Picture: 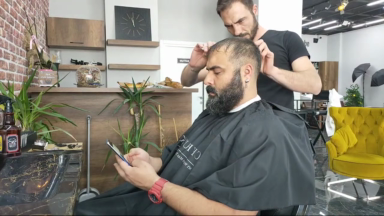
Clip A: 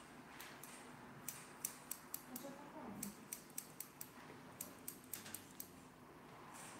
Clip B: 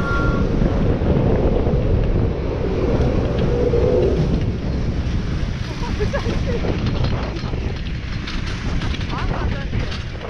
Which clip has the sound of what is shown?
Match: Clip A